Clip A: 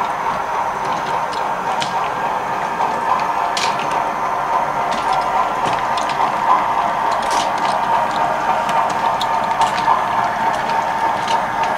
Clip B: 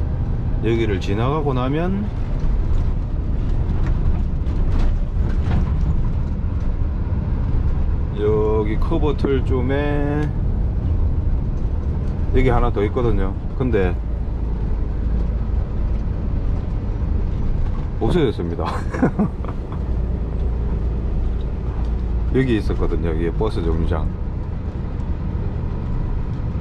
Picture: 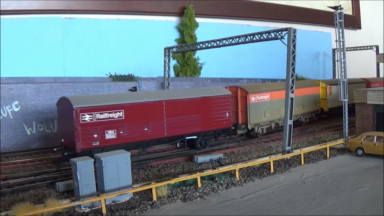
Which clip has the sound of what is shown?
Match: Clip A